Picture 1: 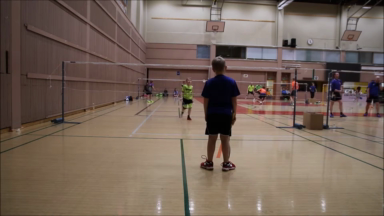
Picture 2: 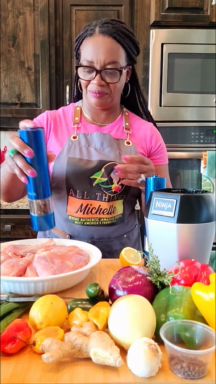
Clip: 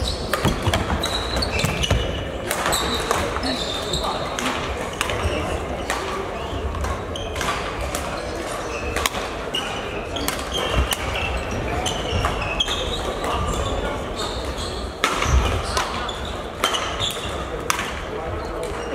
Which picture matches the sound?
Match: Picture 1